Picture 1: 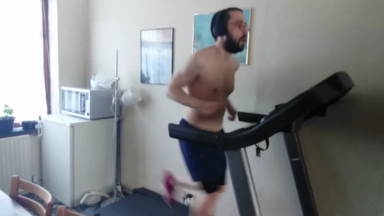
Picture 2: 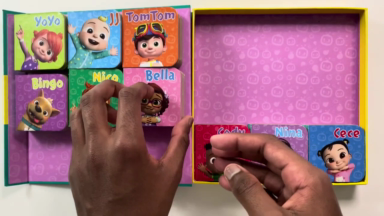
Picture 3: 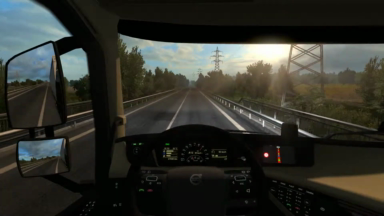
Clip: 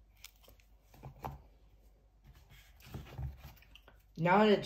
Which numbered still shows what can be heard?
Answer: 2